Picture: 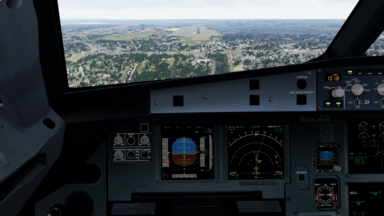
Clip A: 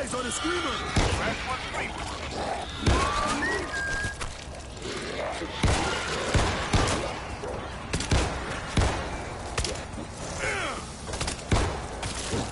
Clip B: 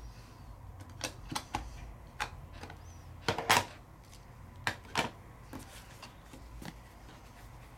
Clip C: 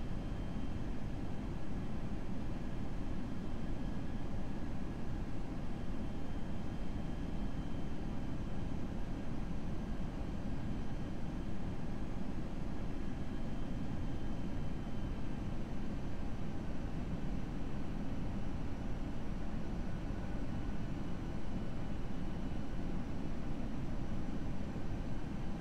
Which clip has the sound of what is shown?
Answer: C